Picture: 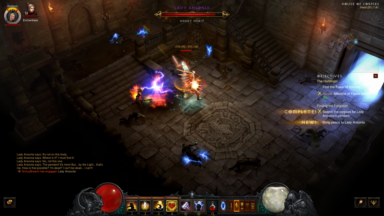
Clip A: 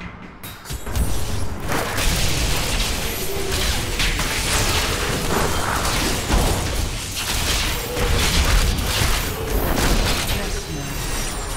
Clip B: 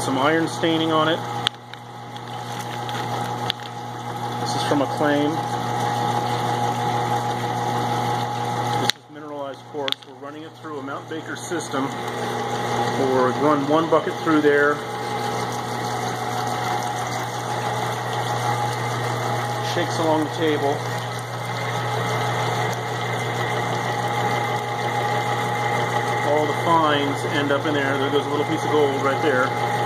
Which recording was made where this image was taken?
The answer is A